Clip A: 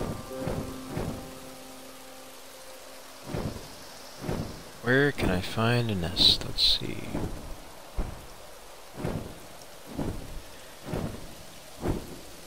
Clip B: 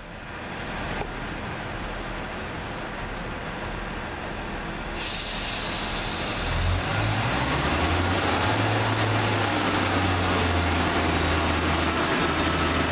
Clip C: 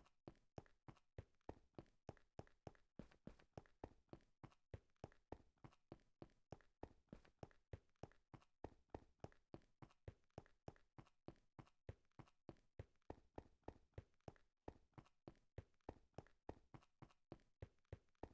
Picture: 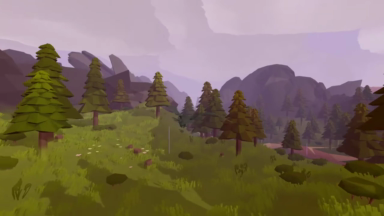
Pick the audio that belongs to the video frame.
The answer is A